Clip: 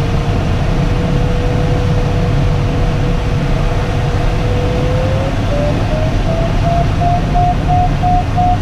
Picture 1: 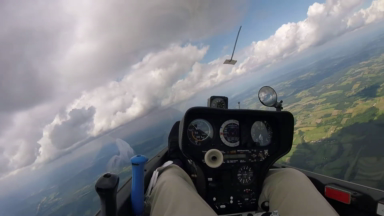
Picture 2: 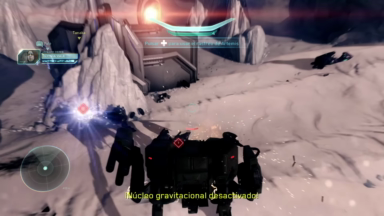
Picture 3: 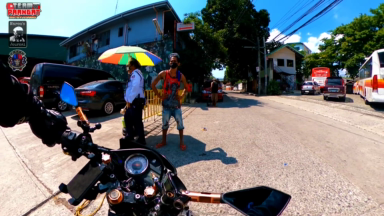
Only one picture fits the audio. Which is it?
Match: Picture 1